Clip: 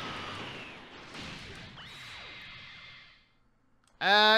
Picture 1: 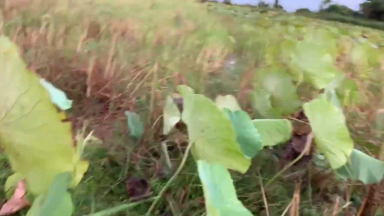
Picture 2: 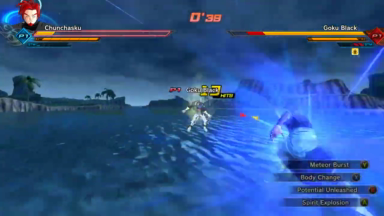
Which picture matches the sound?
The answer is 2